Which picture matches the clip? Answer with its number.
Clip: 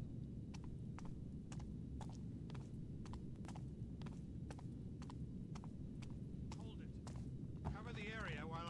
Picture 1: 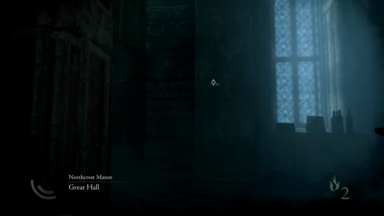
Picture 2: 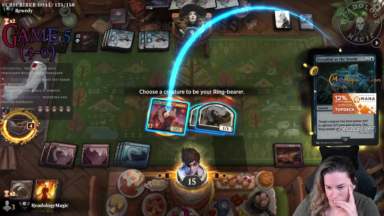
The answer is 1